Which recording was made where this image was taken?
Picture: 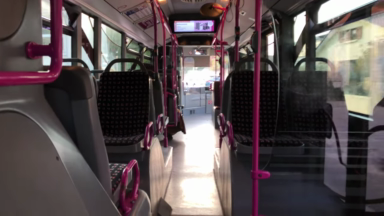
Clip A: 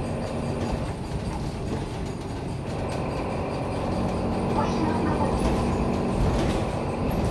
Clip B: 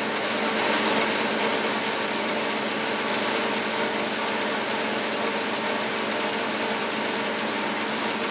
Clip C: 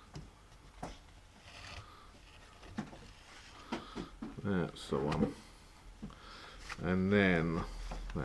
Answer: A